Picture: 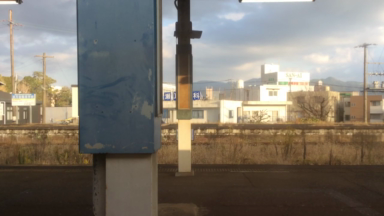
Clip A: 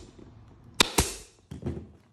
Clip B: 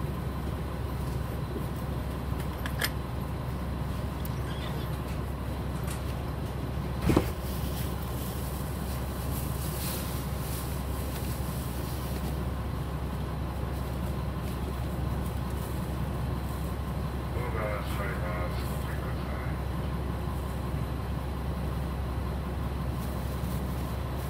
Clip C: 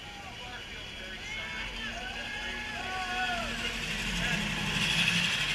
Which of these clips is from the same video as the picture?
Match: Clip B